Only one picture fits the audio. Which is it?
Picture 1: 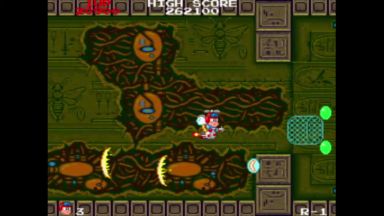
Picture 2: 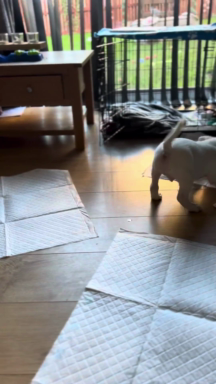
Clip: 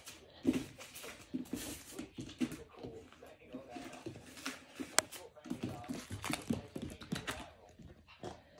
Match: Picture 2